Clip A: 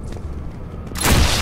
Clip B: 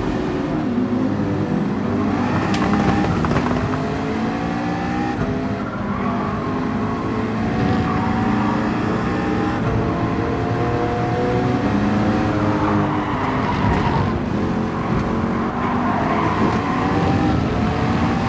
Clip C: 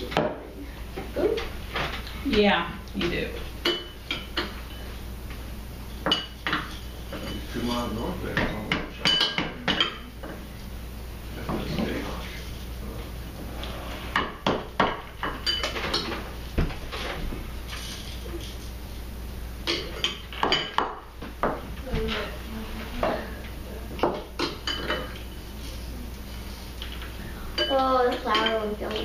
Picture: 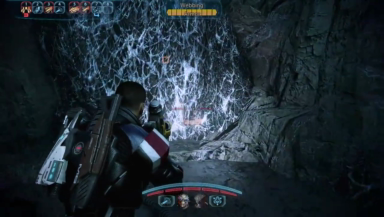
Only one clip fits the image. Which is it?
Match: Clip A